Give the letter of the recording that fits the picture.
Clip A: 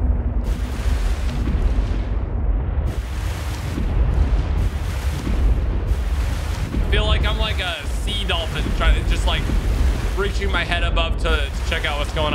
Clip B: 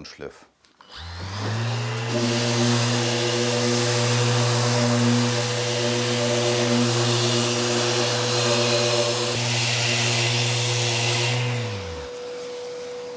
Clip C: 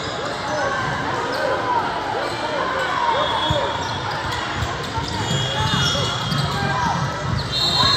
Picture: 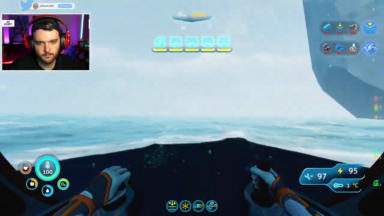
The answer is A